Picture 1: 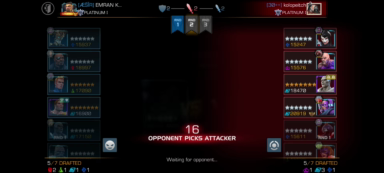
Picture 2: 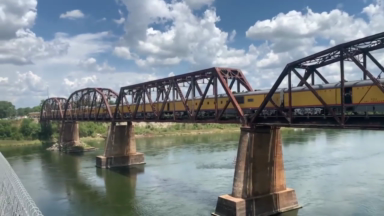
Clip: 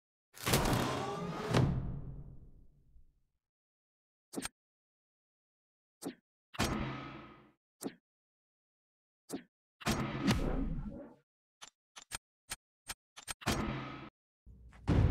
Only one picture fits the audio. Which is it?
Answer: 1